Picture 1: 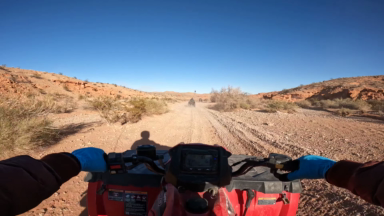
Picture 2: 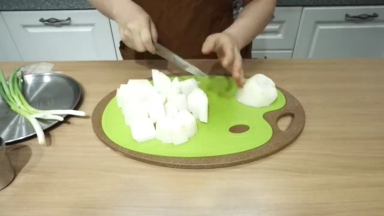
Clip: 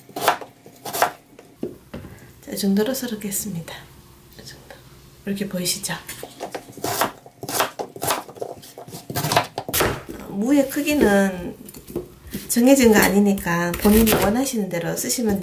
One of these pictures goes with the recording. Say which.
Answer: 2